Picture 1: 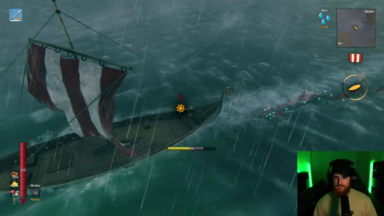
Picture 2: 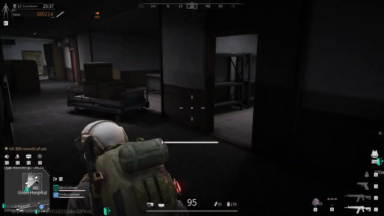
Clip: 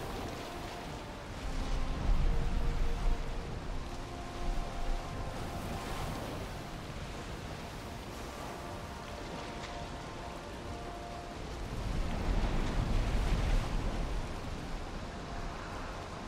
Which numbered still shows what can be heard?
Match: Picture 1